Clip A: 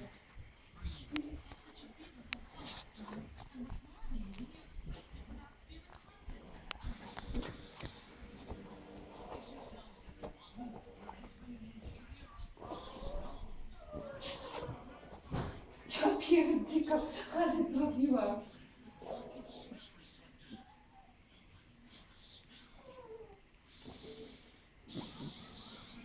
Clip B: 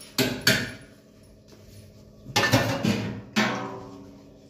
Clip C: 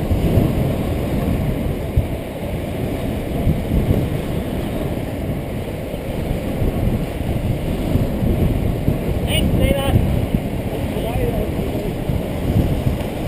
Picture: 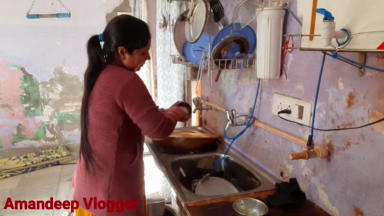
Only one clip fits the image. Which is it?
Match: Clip B